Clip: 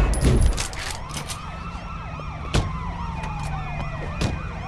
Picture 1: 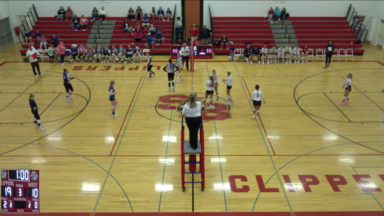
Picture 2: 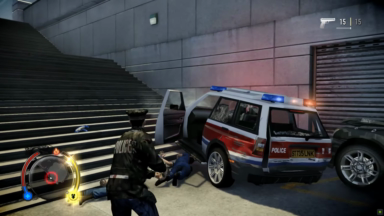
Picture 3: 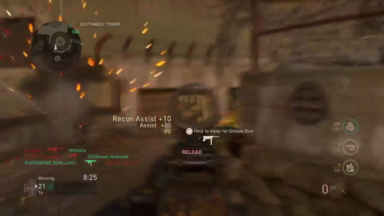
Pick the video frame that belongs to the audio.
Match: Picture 2